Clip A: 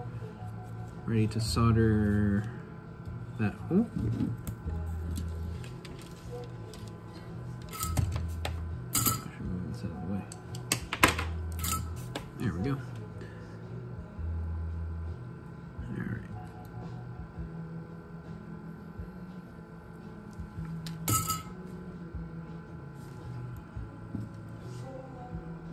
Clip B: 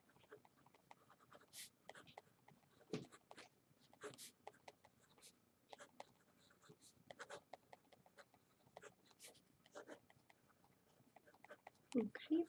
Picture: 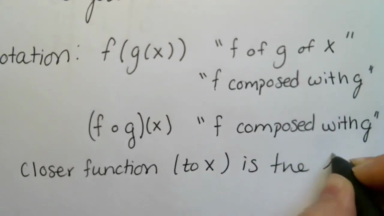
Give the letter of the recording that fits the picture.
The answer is B